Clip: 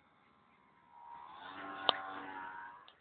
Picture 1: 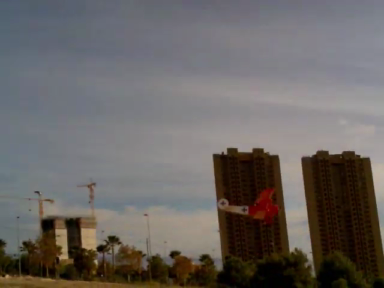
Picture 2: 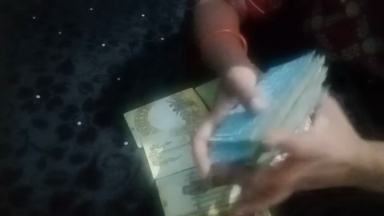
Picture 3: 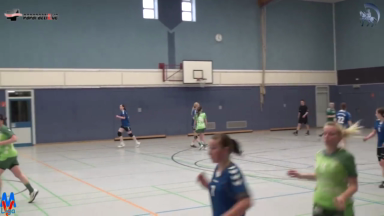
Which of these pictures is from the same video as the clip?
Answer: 1